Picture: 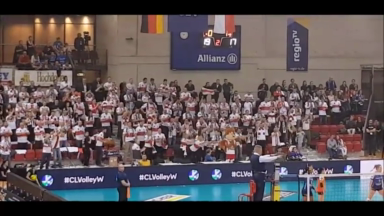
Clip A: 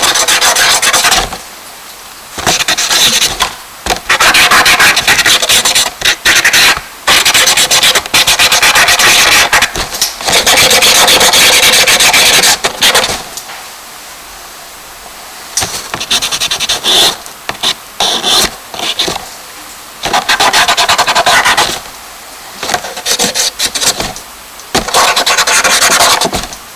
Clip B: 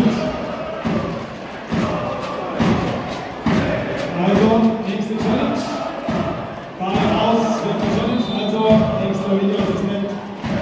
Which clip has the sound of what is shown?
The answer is B